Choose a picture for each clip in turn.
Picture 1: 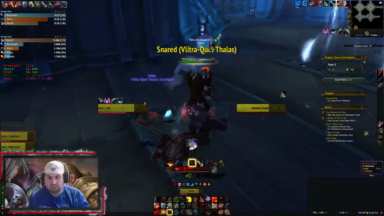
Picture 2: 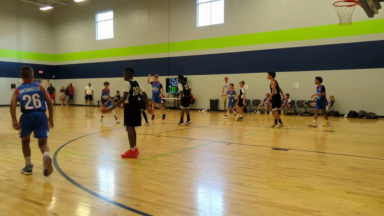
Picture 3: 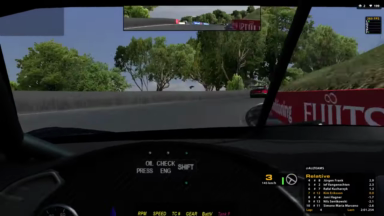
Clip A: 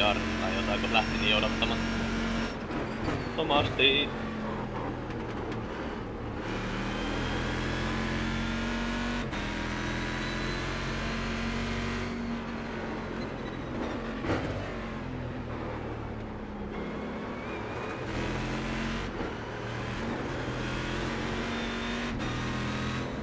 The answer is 3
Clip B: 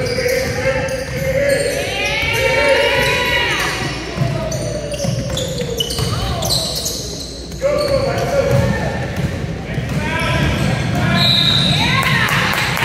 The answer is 2